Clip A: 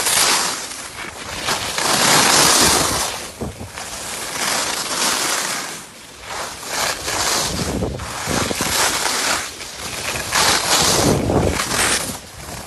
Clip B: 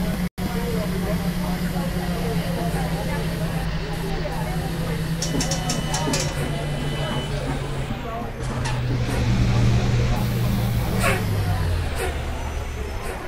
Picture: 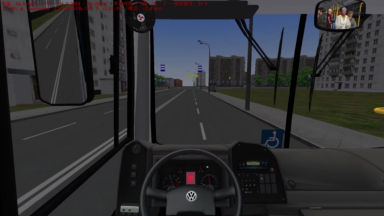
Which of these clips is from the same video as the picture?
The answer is B